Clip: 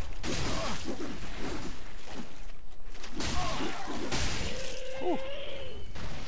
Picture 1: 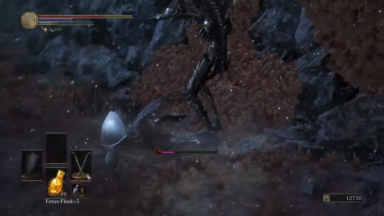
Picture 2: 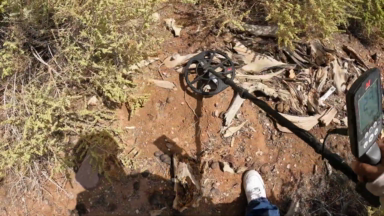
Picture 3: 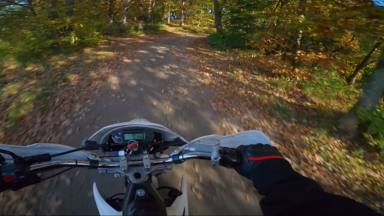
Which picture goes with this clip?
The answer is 1